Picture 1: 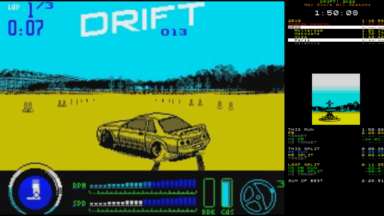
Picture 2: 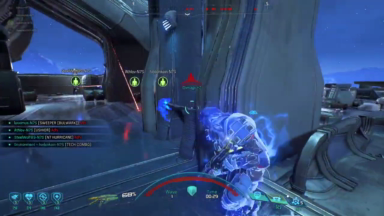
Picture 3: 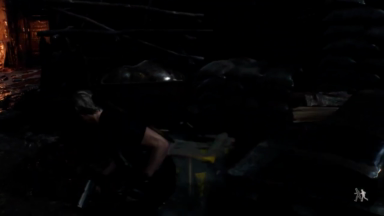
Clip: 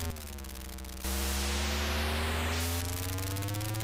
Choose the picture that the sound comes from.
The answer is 1